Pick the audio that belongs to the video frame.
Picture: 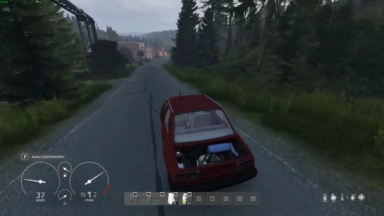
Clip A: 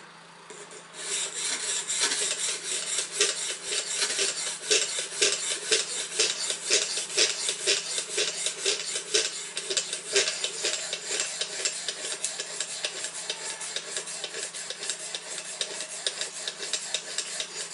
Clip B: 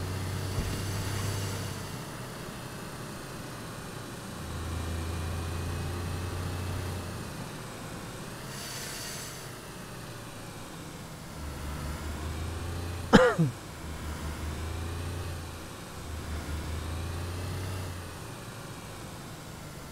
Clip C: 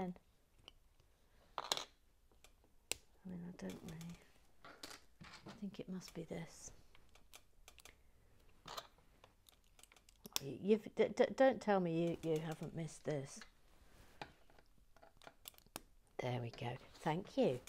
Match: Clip B